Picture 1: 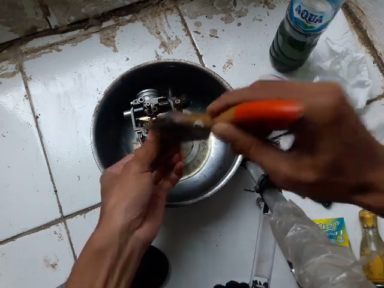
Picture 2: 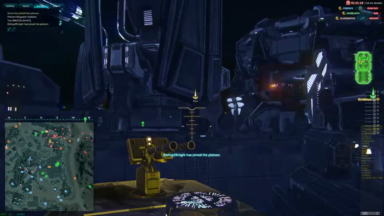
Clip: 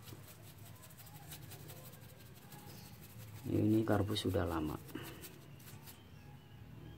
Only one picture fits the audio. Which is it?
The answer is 1